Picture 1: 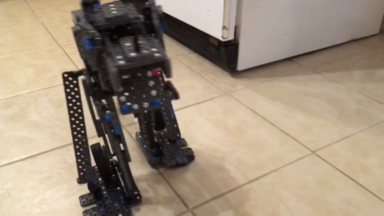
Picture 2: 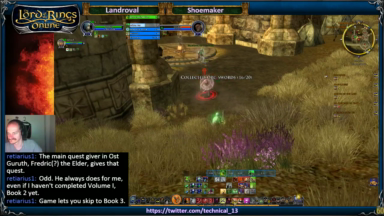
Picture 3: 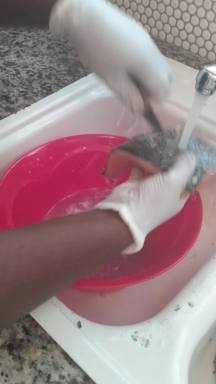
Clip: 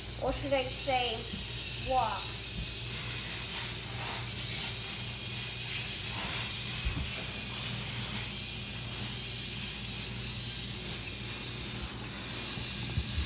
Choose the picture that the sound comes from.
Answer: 1